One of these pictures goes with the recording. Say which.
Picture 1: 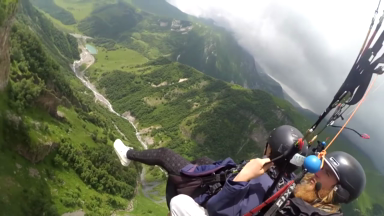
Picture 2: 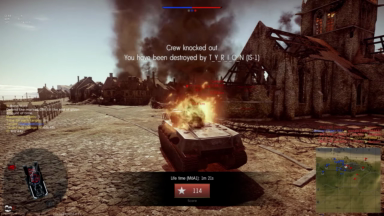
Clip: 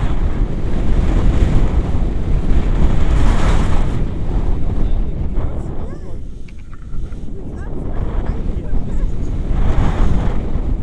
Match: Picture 1